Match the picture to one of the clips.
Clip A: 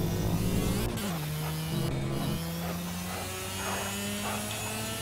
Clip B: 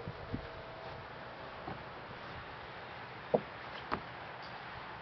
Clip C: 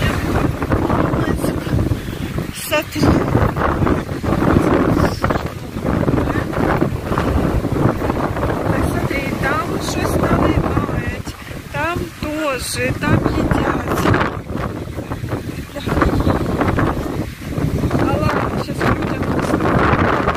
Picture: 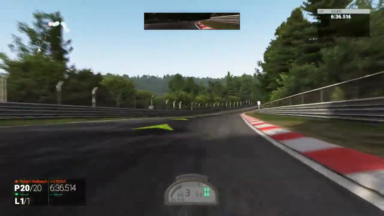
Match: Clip A